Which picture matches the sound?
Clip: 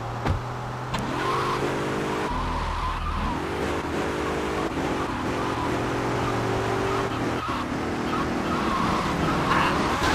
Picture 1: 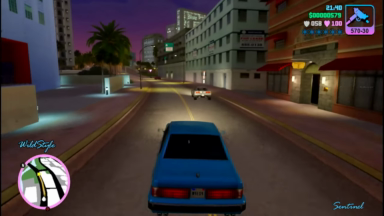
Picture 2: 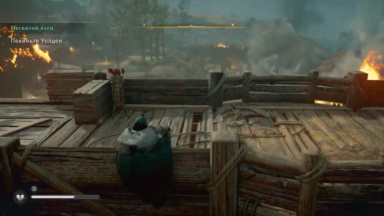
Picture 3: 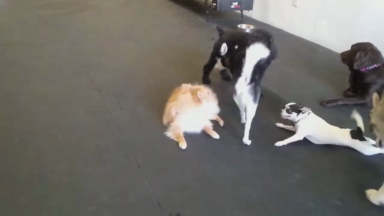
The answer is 1